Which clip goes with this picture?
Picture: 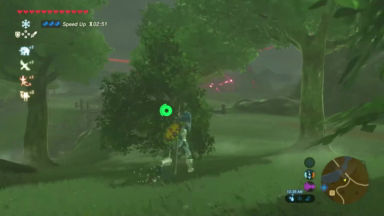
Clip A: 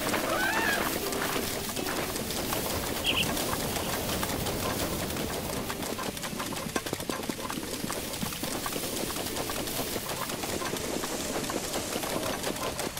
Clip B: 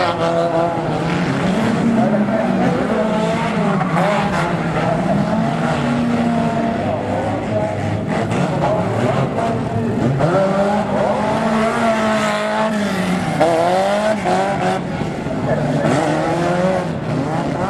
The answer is A